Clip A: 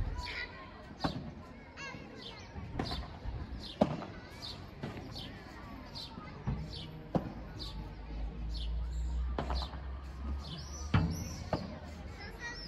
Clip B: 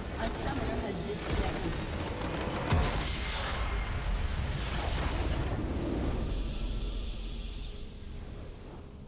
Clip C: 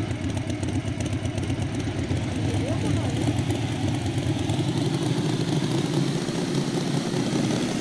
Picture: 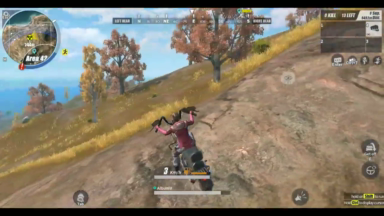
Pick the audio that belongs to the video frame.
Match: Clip C